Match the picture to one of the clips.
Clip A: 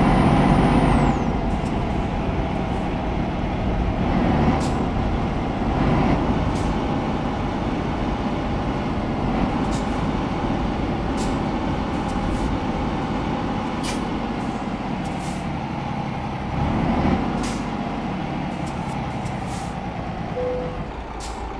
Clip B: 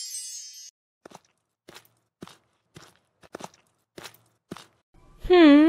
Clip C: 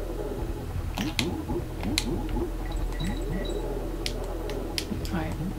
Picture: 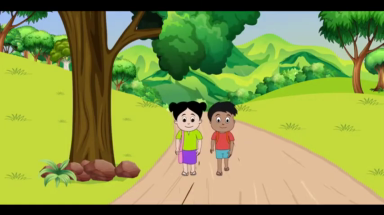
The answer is B